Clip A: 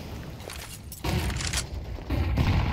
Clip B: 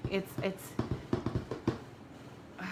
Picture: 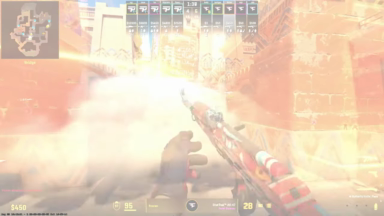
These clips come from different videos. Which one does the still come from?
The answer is A